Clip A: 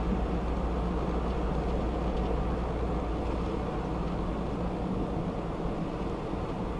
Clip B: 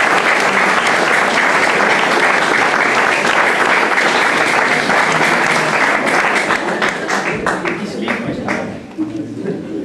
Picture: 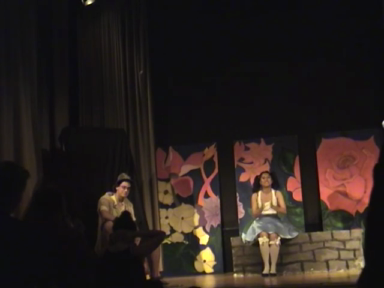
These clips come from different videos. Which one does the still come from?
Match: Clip B